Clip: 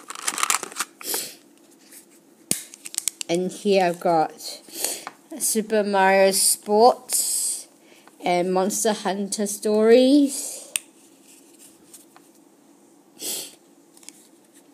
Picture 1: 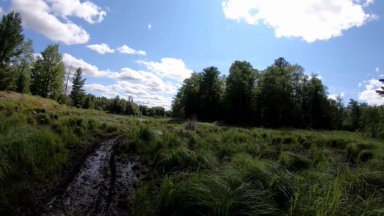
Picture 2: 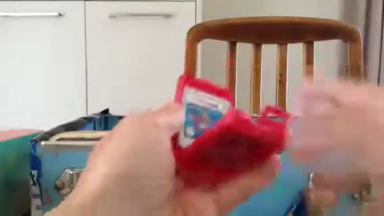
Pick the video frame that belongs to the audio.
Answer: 2